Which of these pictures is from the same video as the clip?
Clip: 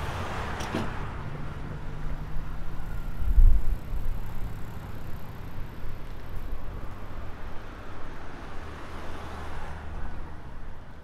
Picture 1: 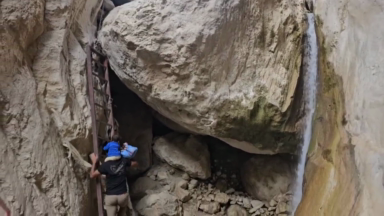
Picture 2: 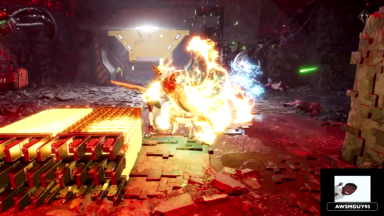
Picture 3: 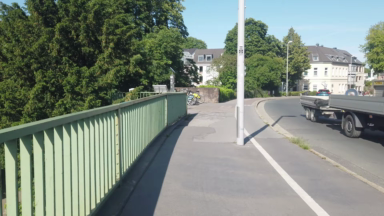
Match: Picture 3